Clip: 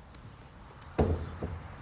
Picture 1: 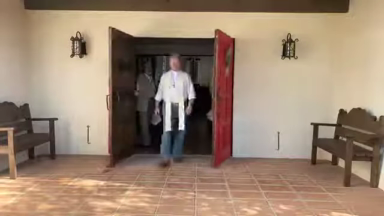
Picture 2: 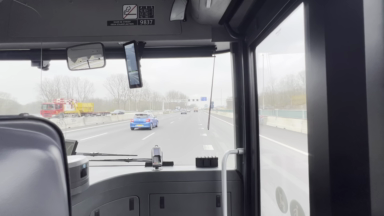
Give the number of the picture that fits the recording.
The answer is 1